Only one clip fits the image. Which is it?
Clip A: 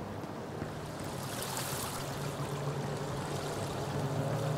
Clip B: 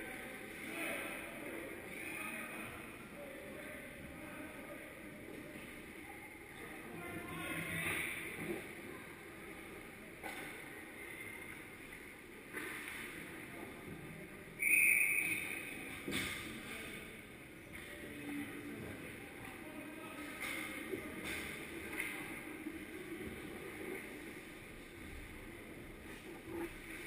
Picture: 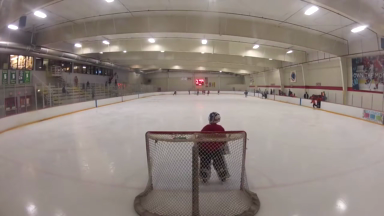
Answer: B